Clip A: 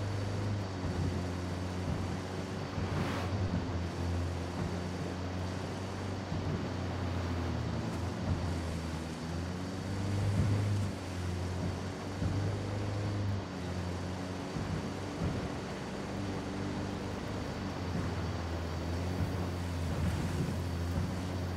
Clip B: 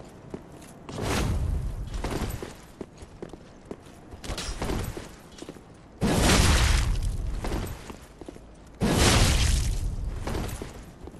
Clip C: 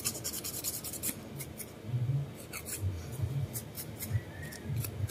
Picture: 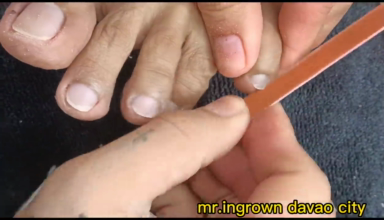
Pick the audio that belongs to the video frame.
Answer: C